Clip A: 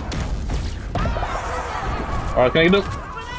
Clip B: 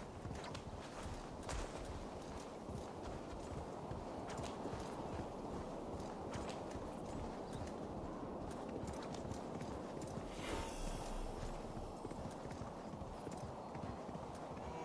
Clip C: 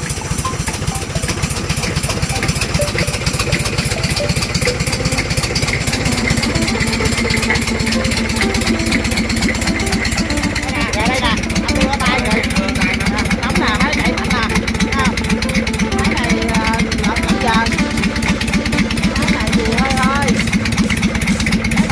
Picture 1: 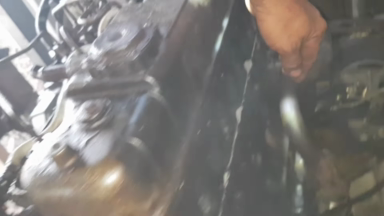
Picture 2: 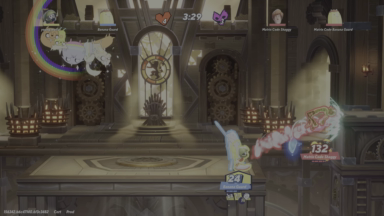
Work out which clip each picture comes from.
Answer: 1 C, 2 A